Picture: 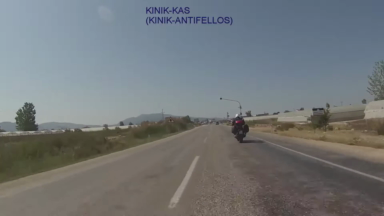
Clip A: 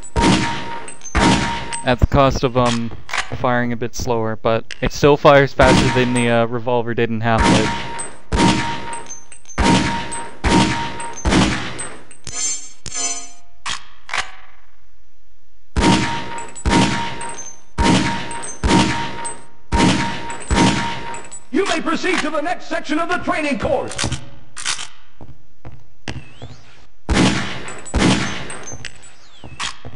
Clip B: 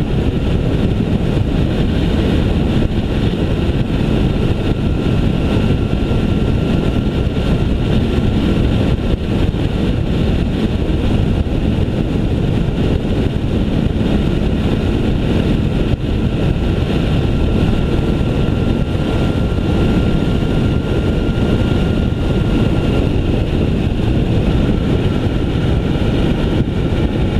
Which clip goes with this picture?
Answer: B